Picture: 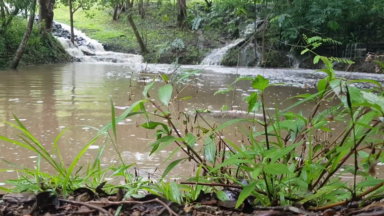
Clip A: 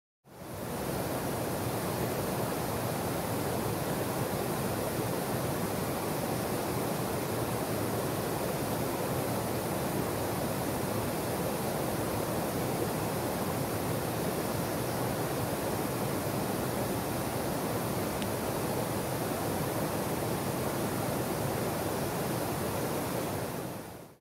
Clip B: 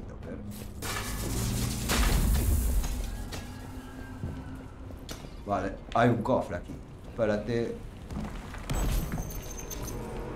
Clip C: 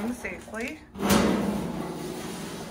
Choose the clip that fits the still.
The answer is A